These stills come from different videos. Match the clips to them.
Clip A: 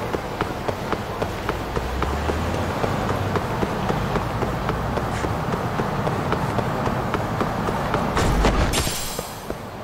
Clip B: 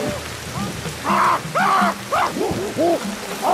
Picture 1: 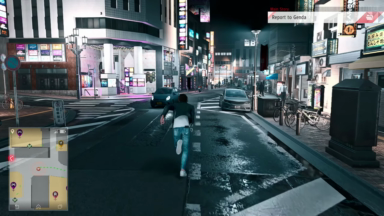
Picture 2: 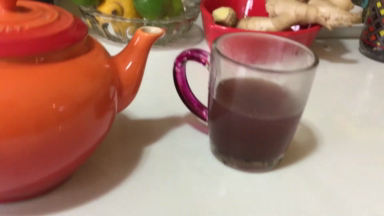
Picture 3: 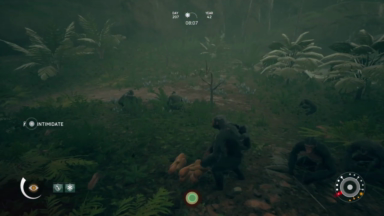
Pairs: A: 1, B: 3